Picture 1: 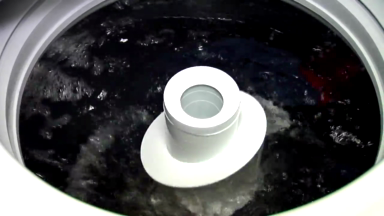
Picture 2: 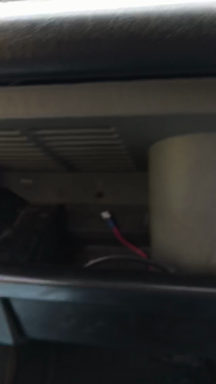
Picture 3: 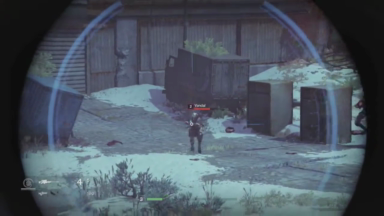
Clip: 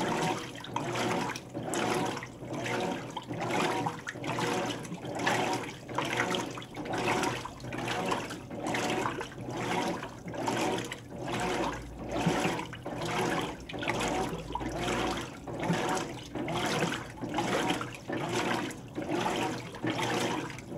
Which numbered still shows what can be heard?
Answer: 1